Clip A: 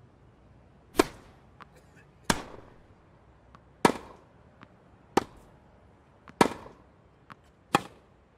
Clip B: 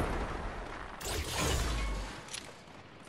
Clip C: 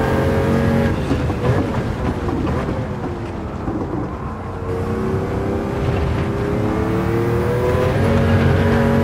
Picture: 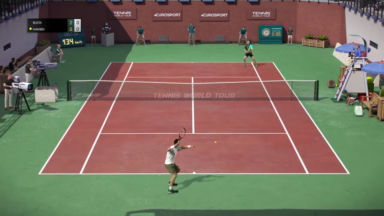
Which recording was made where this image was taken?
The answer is A